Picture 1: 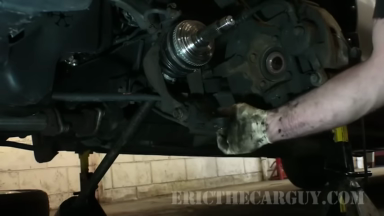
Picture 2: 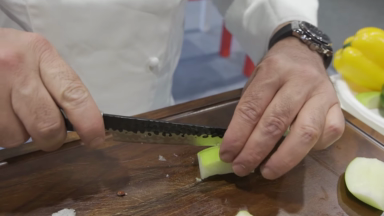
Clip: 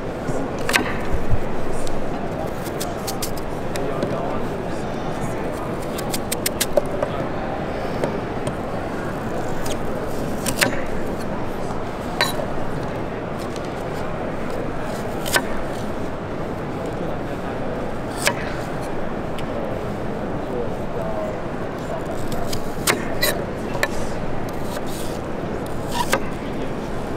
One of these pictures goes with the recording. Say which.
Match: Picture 2